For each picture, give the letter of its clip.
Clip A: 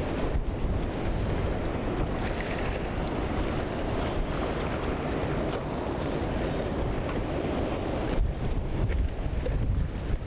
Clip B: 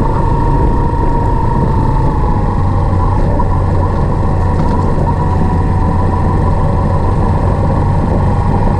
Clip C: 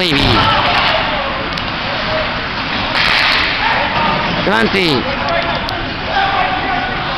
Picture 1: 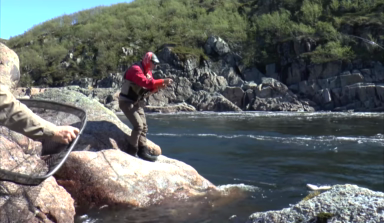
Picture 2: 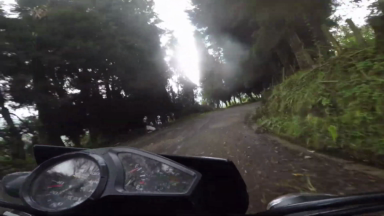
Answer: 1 A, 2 B